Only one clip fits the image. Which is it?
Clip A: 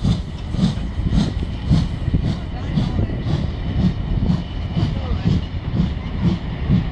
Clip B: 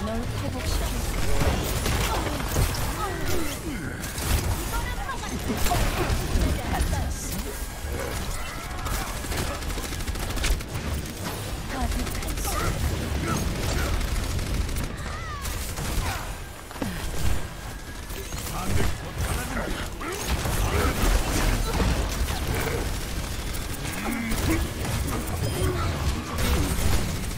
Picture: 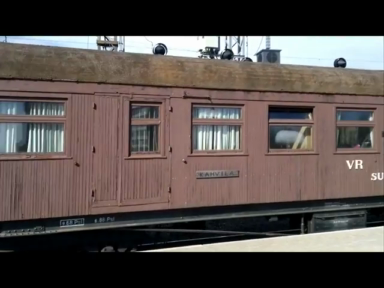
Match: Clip A